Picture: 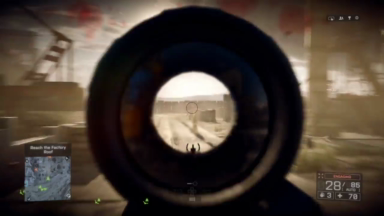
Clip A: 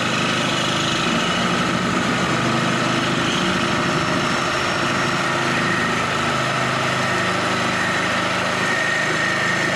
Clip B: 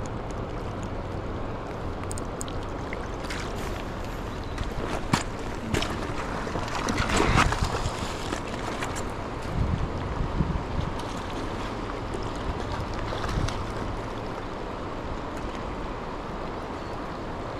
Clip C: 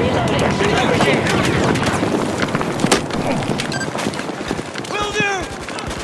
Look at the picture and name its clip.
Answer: C